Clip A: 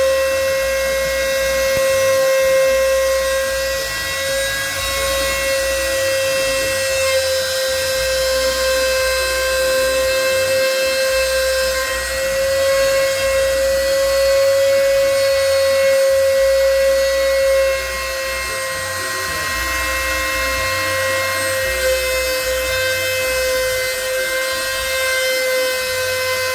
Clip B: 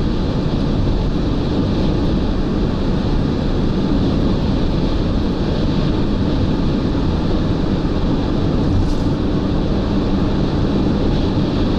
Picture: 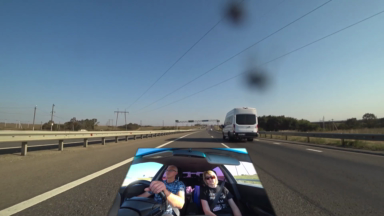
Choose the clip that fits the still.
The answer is B